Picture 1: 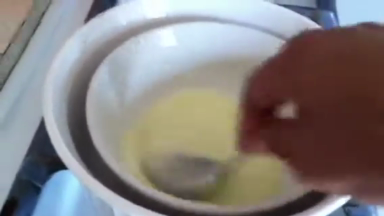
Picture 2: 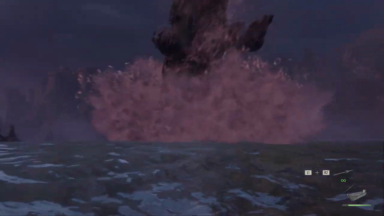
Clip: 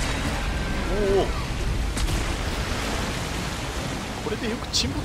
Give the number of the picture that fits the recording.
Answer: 2